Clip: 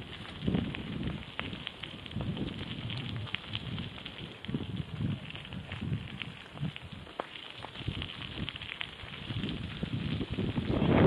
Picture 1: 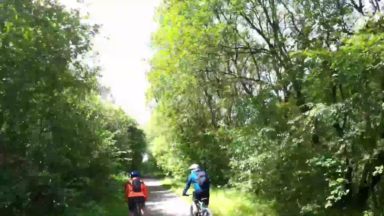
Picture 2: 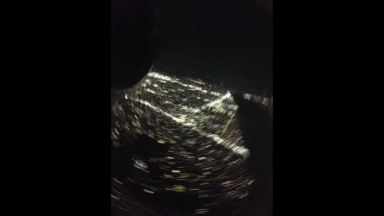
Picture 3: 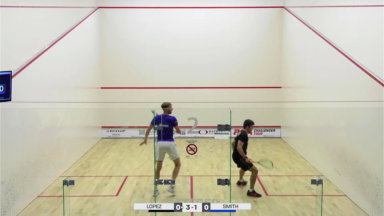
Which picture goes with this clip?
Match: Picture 1